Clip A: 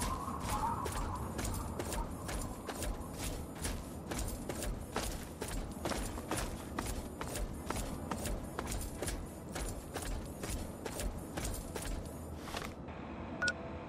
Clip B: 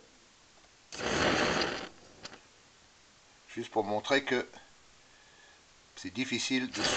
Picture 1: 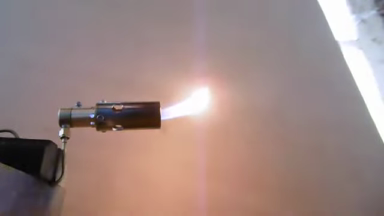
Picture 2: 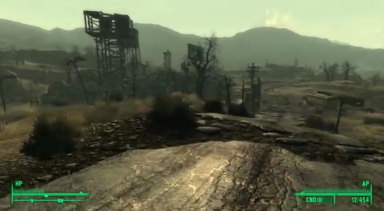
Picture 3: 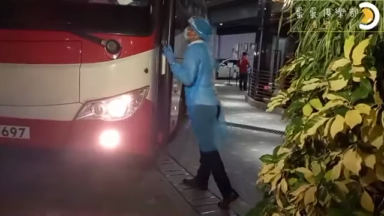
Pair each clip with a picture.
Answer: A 2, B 1